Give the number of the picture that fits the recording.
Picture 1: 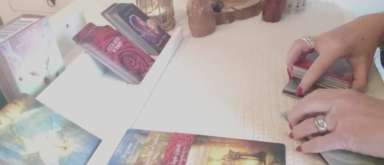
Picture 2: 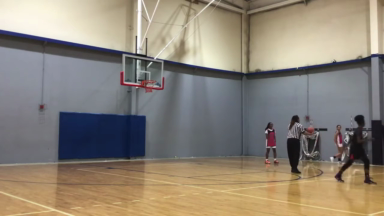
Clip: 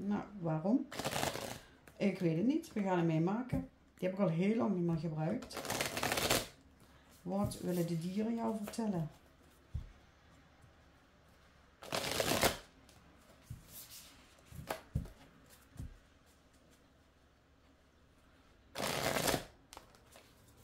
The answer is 1